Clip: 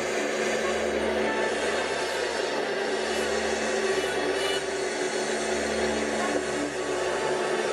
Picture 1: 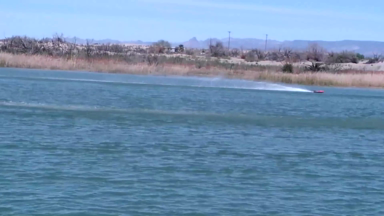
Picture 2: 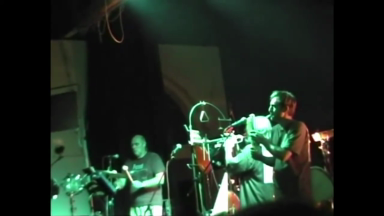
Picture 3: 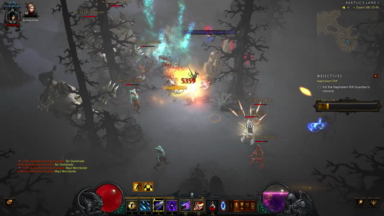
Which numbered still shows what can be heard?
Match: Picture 2